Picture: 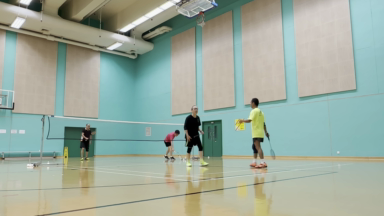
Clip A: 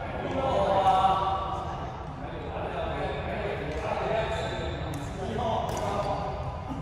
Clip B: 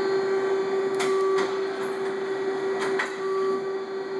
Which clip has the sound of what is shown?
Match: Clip A